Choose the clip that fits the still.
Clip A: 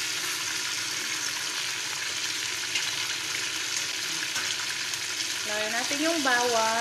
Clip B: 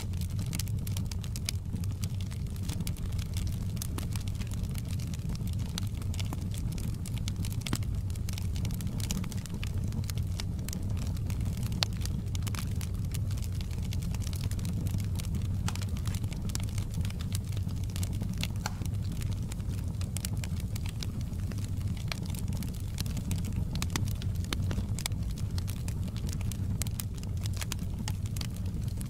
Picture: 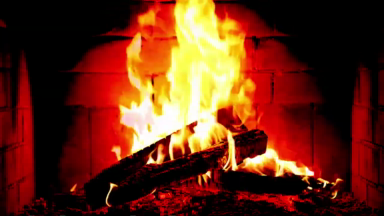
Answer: B